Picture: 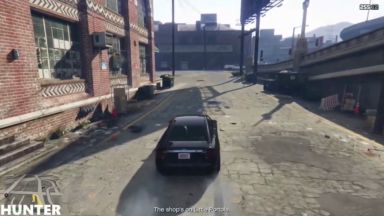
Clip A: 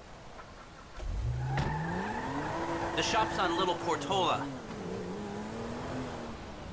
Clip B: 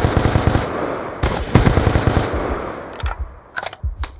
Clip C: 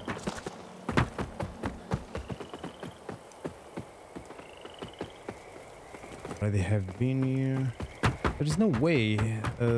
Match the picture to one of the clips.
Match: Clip A